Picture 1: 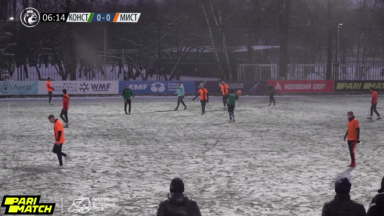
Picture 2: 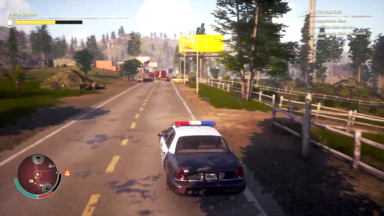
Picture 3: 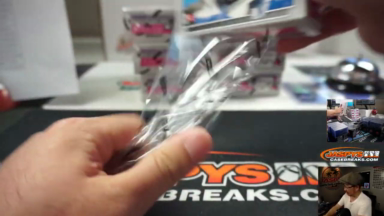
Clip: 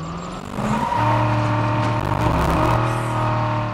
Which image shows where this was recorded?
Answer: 2